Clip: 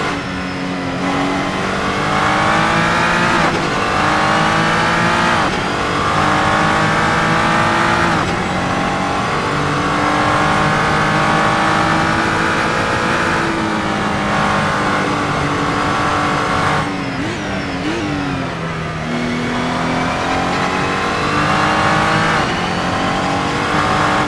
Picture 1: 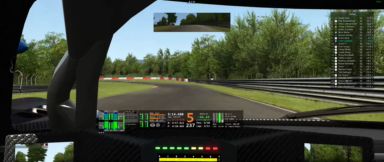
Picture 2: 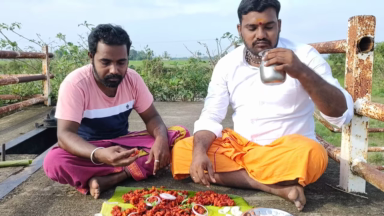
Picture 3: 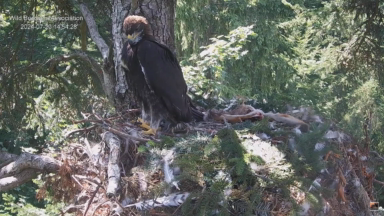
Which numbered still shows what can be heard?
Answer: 1